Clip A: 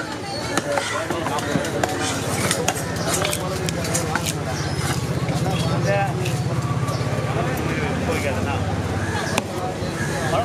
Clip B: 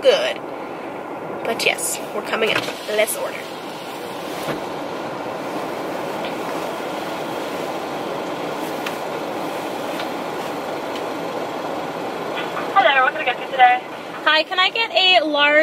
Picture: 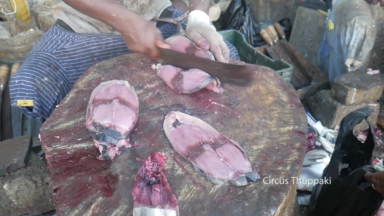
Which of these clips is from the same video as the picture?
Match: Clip A